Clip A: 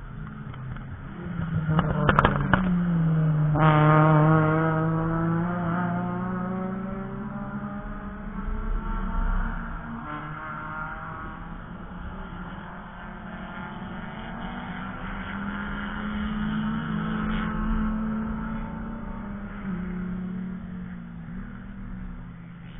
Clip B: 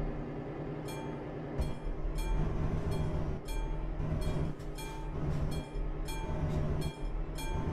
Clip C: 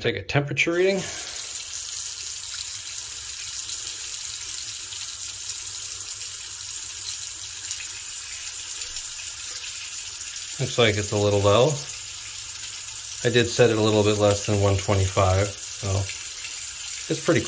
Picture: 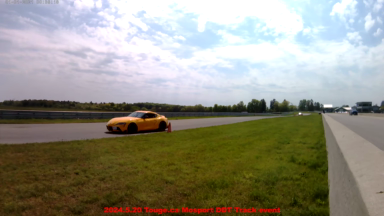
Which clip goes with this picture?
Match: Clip A